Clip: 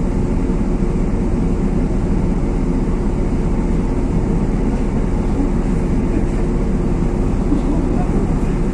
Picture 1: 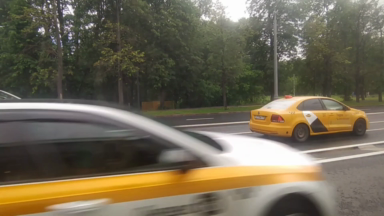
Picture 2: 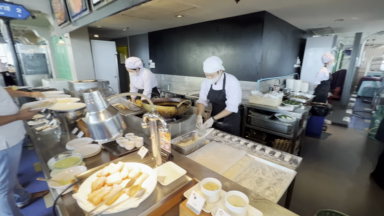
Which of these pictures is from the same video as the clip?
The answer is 1